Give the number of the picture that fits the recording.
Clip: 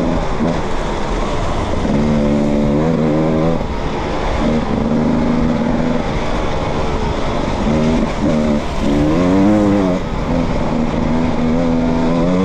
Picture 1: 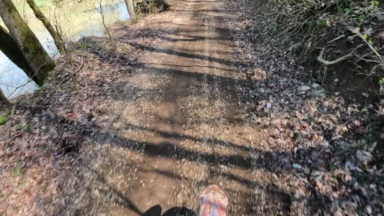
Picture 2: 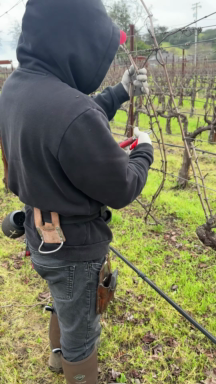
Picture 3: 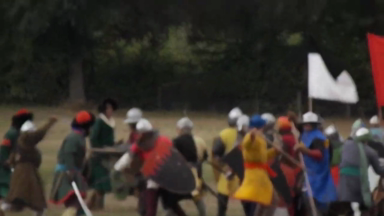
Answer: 1